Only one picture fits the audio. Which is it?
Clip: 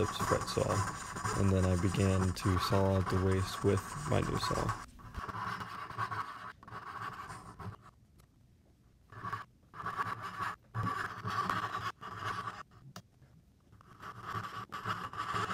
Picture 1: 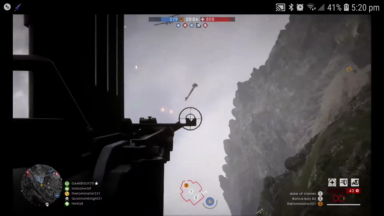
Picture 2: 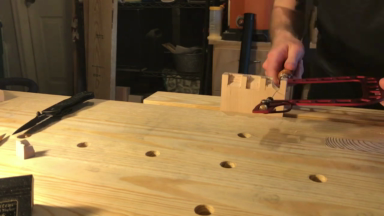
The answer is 2